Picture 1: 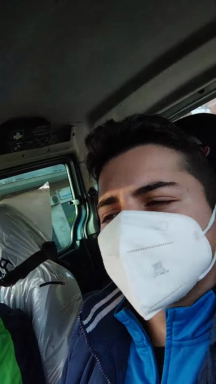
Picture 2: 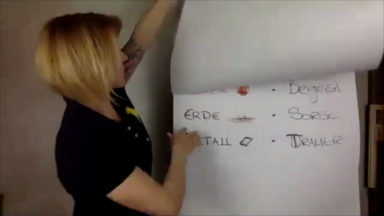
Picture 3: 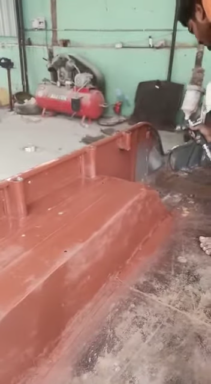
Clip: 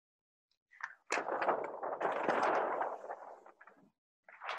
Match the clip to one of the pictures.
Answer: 2